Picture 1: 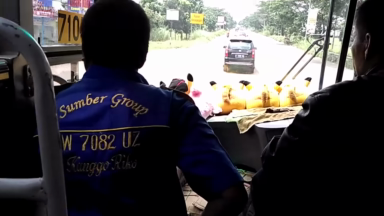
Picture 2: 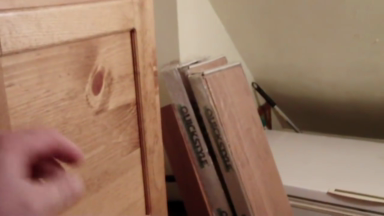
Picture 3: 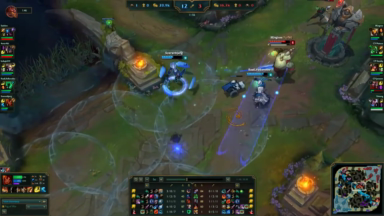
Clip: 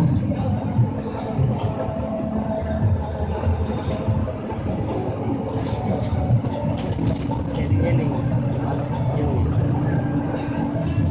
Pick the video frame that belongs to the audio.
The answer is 1